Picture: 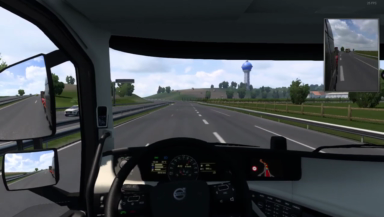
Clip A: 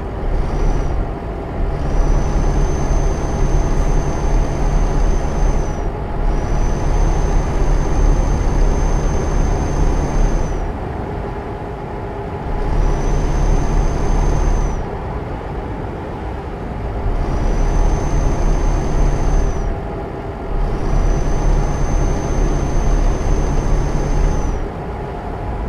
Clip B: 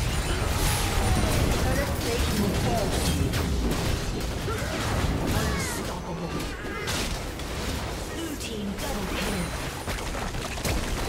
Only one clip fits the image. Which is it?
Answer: A